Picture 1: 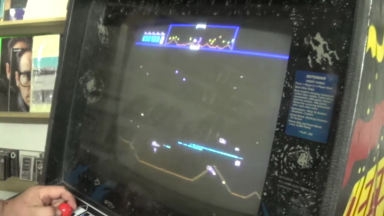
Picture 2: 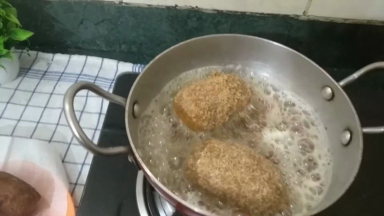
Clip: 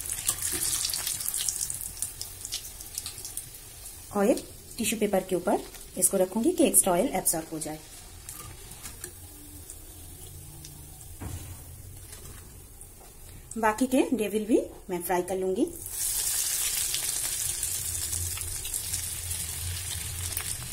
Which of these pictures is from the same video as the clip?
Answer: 2